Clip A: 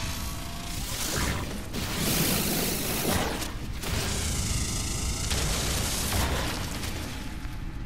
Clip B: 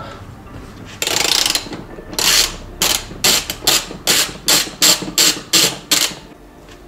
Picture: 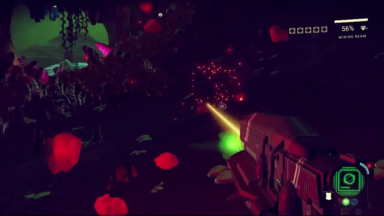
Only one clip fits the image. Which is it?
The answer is A